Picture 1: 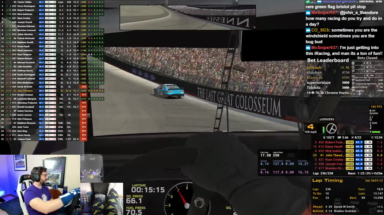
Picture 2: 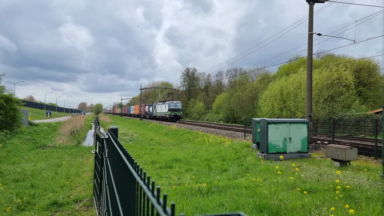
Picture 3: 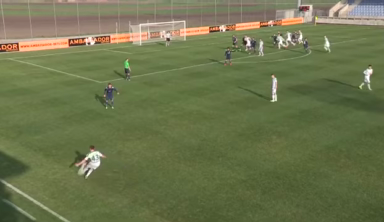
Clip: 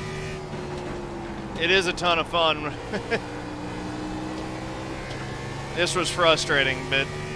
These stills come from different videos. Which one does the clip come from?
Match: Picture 1